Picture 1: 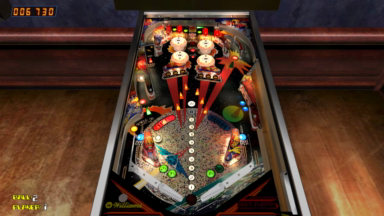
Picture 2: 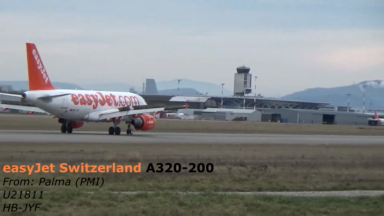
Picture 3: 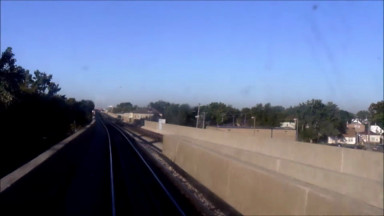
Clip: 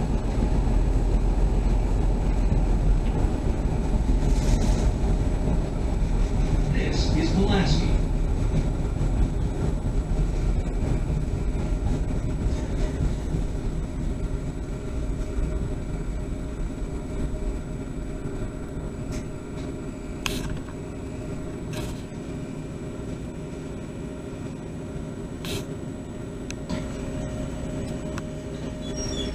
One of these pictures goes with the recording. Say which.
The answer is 3